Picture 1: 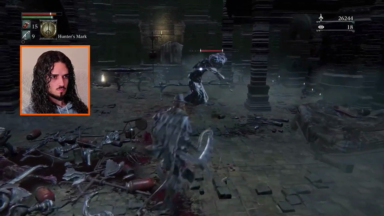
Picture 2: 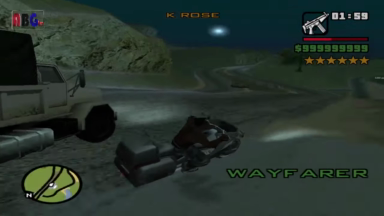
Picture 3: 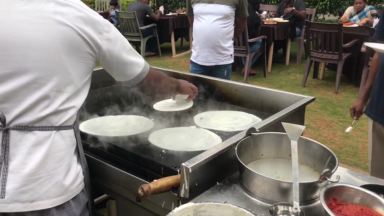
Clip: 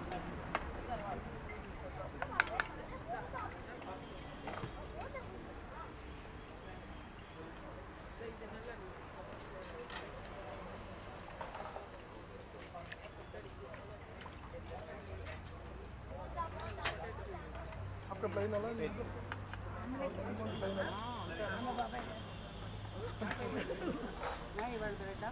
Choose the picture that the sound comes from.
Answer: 3